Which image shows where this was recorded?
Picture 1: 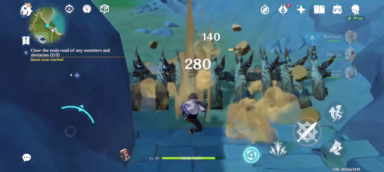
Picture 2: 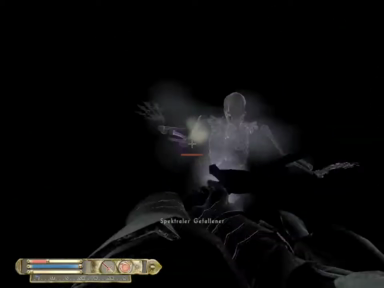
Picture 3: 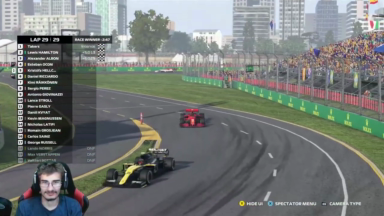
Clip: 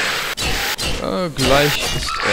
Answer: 2